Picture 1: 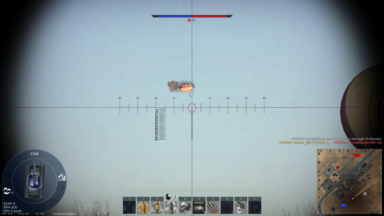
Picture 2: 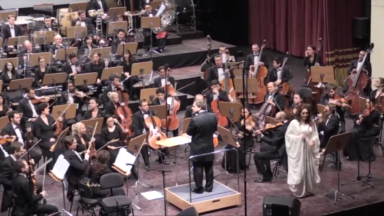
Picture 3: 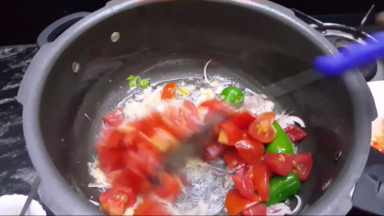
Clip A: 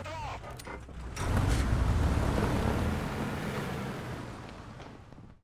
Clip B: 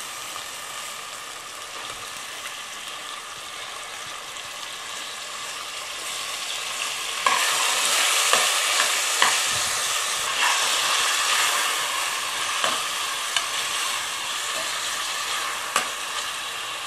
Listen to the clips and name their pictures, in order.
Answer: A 1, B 3